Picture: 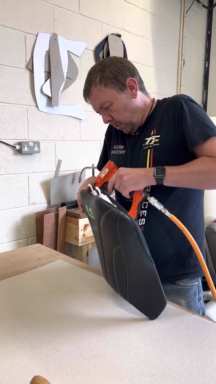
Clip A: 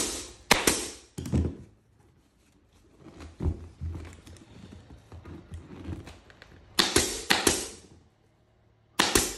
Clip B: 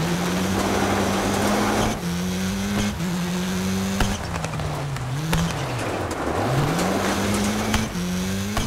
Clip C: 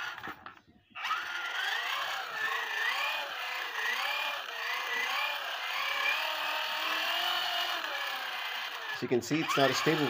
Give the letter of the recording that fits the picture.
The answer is A